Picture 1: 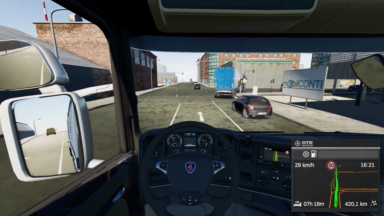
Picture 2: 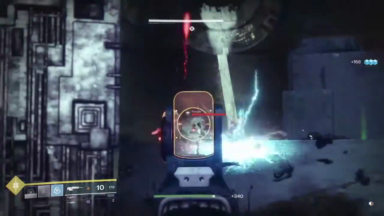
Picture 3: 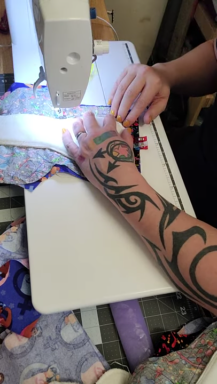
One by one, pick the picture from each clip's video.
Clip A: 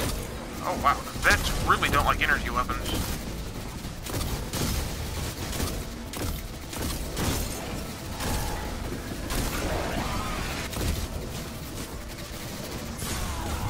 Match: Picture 2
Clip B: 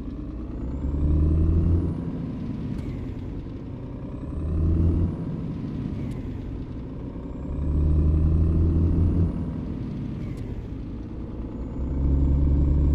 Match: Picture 1